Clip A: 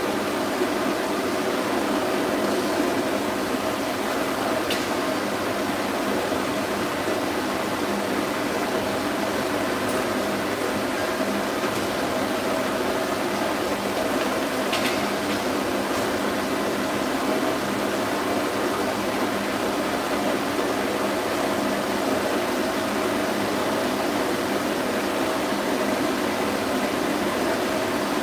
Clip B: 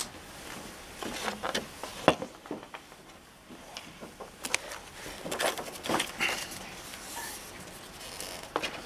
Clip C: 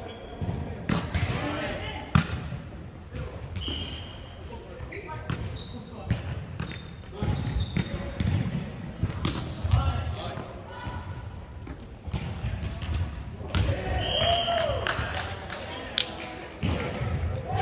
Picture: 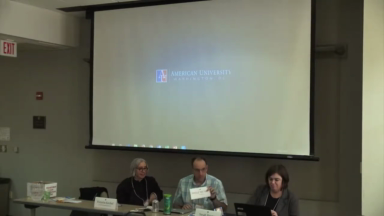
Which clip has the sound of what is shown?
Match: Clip B